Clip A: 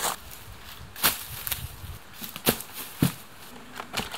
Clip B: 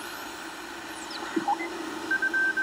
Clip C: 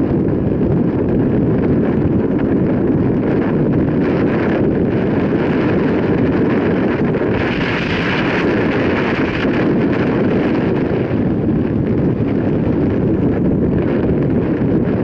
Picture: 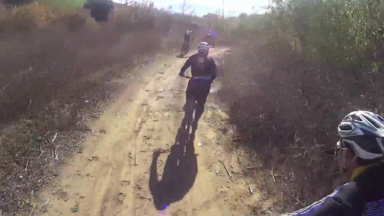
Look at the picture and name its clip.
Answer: C